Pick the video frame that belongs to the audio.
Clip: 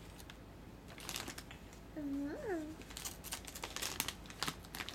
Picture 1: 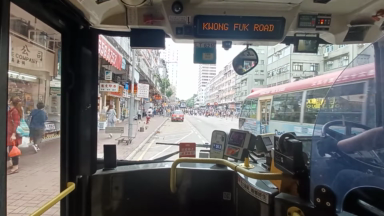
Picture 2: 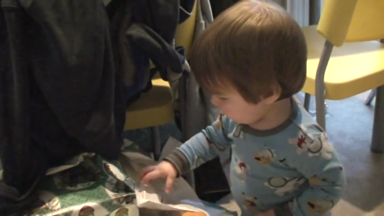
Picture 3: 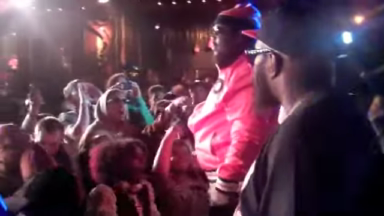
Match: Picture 2